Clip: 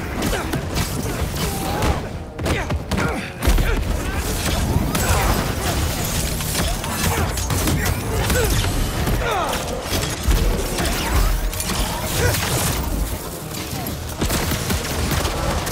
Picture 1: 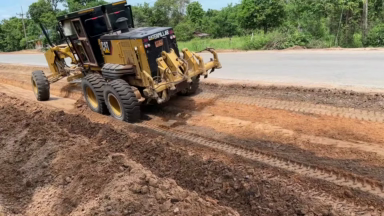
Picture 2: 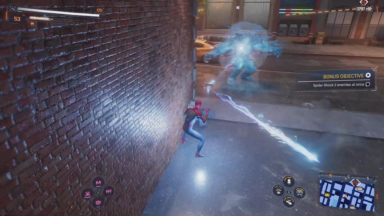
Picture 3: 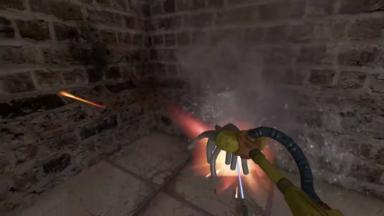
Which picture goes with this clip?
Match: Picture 2